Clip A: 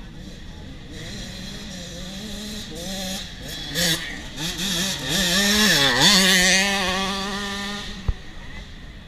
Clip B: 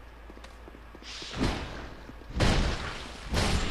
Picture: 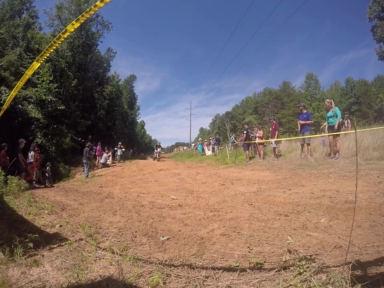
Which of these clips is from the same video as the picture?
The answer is A